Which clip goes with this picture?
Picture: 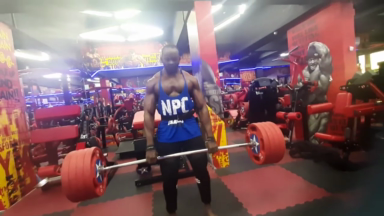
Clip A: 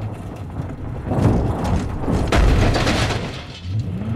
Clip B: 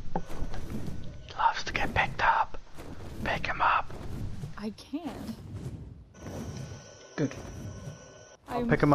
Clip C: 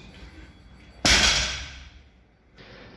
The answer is C